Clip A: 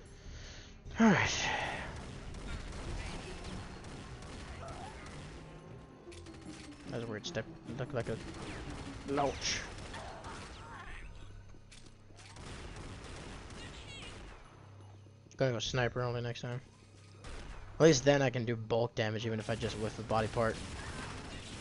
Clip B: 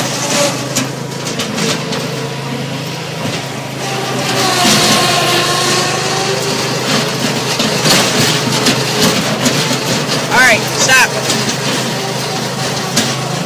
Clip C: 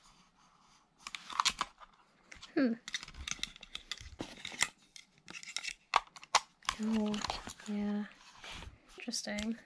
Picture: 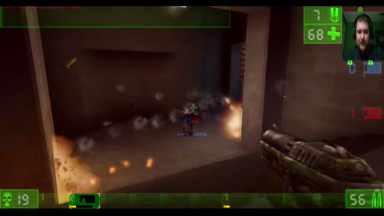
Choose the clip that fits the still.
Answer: A